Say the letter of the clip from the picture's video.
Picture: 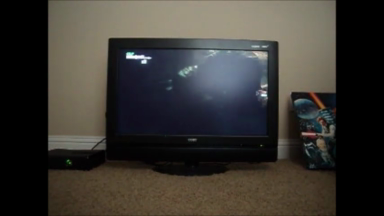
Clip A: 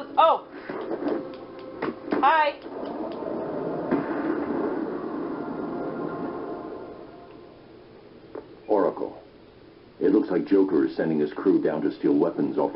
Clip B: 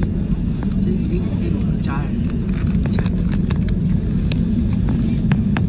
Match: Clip A